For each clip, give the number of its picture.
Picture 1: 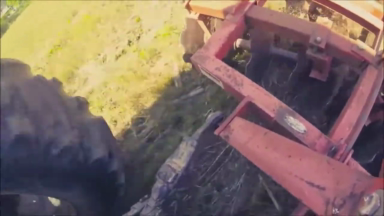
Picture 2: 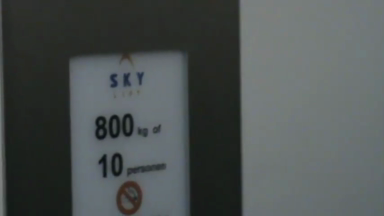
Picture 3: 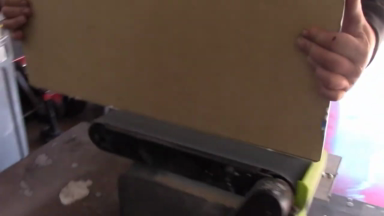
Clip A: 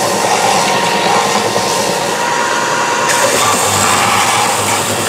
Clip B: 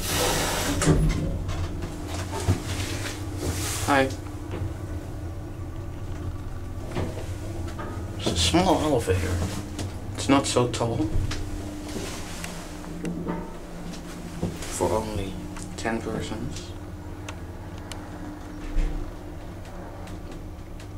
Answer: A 3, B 2